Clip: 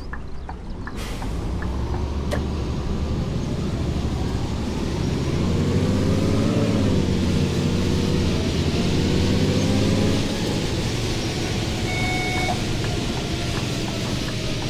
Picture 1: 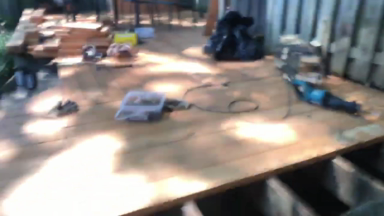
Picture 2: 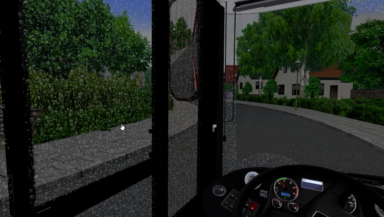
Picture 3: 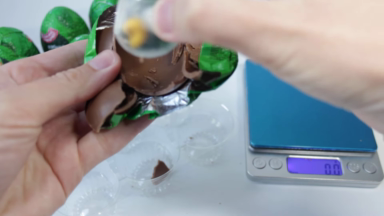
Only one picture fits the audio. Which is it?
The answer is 2